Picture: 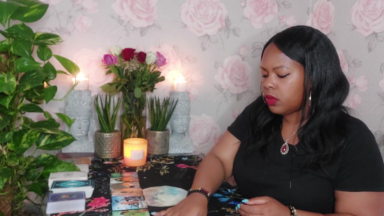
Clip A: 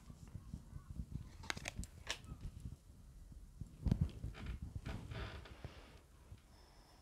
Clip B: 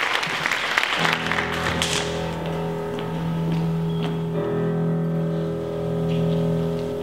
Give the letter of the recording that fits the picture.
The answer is A